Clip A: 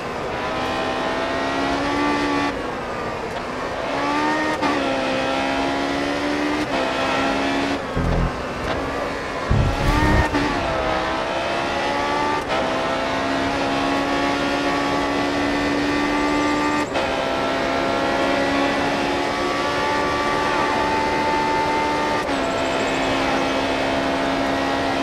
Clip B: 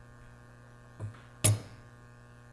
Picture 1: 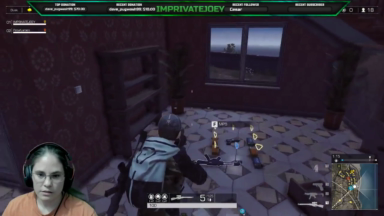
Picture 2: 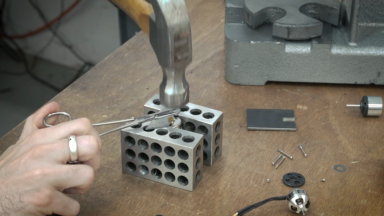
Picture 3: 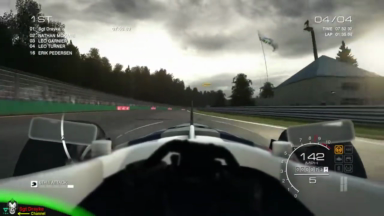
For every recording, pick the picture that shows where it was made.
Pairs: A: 3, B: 2